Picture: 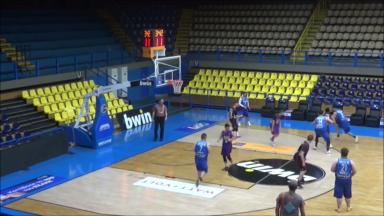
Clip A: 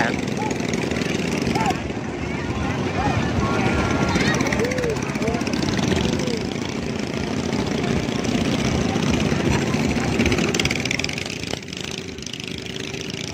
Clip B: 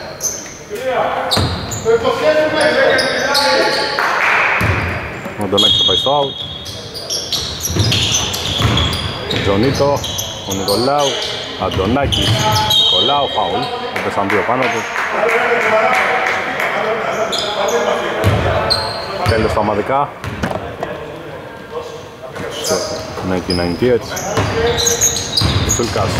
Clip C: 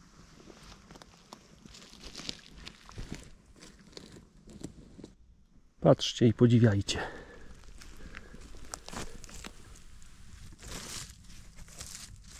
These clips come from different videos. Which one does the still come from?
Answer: B